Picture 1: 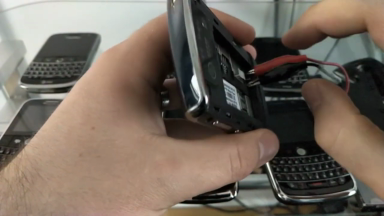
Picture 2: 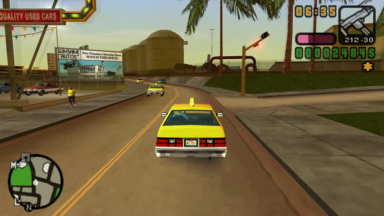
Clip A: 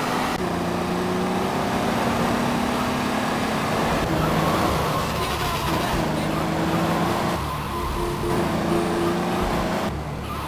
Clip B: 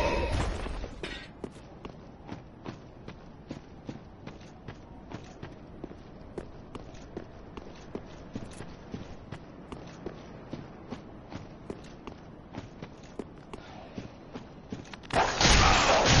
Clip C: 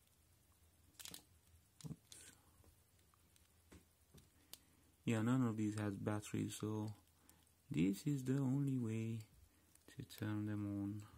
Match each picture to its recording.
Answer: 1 C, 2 A